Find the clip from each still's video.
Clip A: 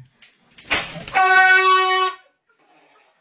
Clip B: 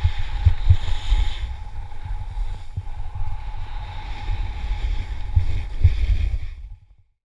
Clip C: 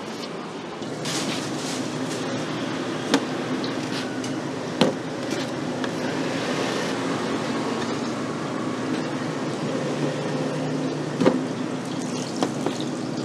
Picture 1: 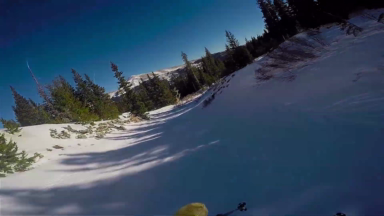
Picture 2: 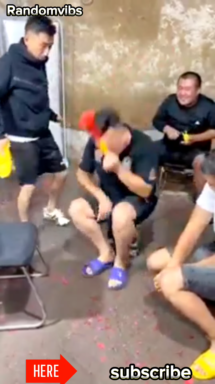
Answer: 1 B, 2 A